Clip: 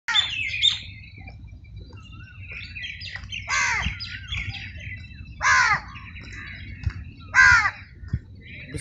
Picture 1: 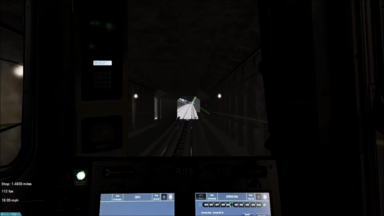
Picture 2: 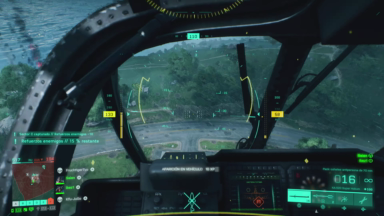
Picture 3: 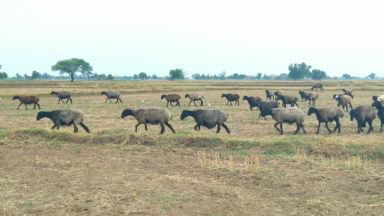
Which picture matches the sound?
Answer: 3